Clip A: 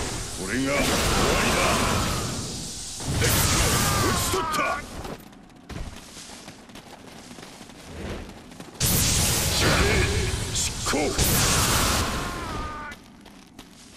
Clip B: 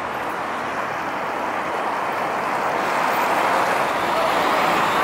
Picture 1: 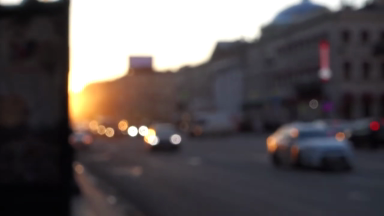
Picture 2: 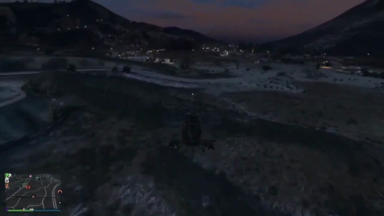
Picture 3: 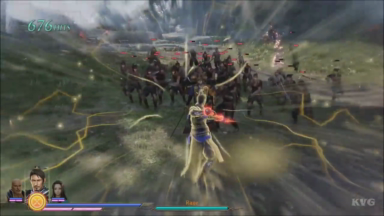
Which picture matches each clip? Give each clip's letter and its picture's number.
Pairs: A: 3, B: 1